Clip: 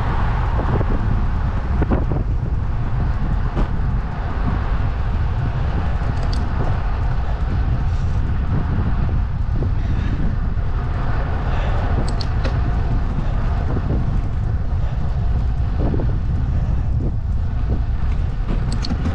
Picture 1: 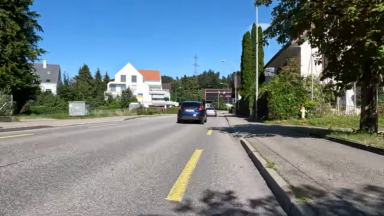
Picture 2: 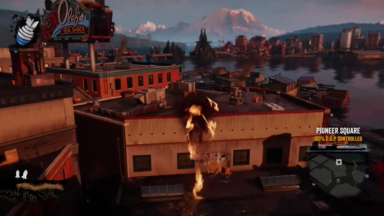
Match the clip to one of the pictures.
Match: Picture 1